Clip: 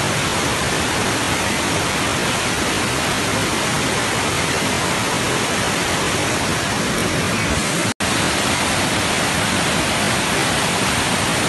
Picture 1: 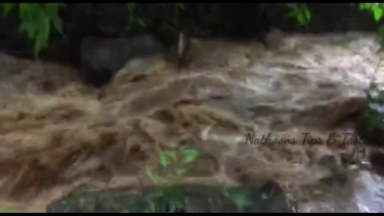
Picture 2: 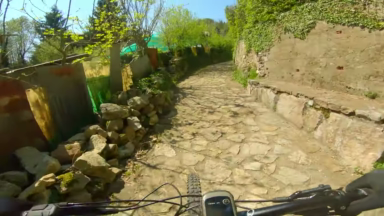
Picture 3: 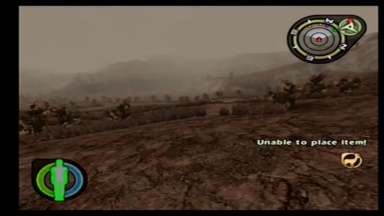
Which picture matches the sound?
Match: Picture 1